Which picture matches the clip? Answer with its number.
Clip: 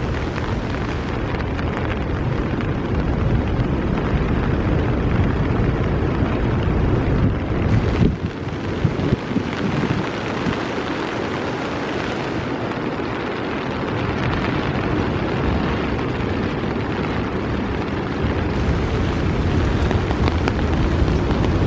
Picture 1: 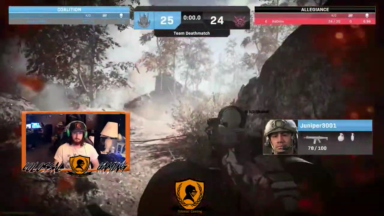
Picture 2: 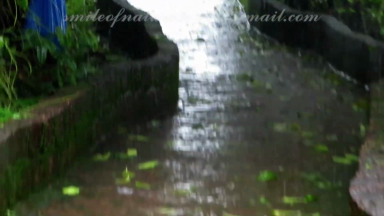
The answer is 2